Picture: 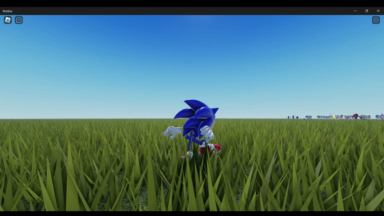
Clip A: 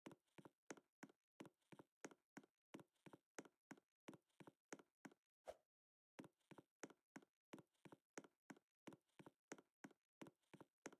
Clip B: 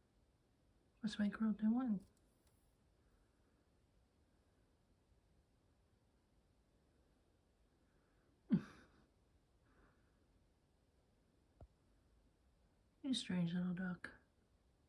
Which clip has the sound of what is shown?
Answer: A